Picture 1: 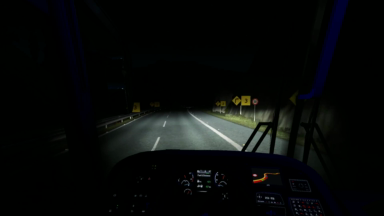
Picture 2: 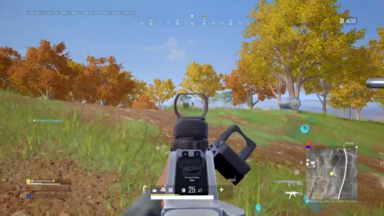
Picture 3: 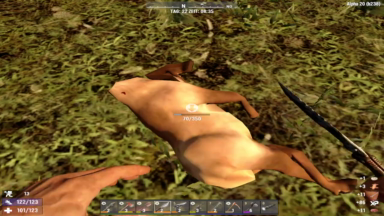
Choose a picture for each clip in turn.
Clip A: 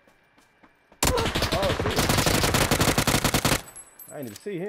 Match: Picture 2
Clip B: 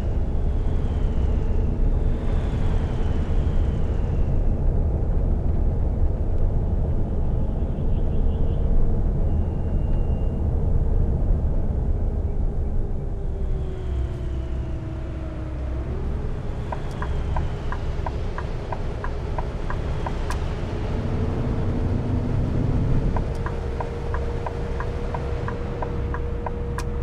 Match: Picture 1